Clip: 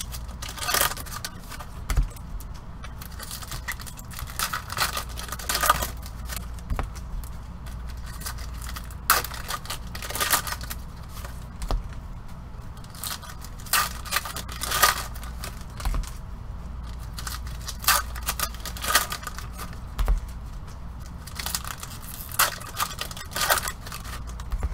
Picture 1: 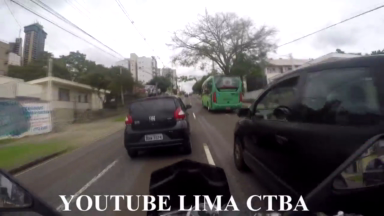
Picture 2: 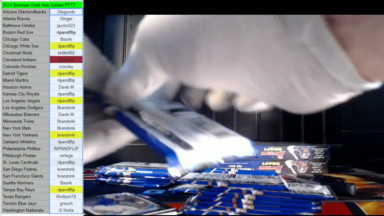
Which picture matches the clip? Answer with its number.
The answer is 2